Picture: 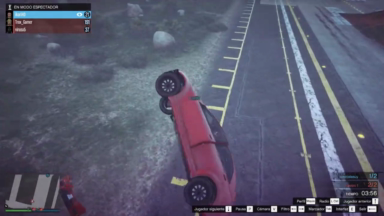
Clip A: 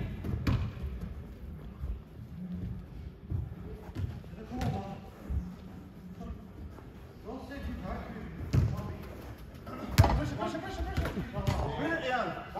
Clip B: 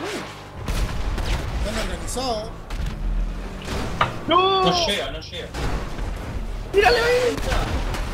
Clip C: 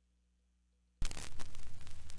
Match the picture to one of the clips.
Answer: B